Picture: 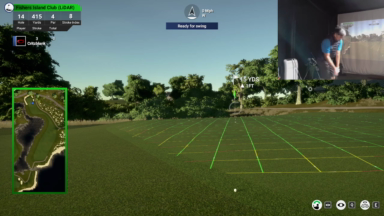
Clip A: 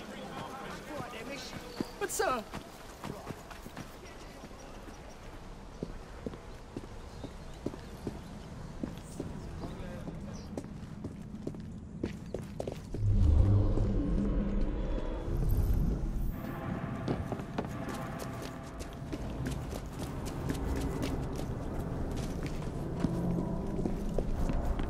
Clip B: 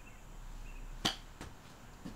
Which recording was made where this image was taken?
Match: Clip B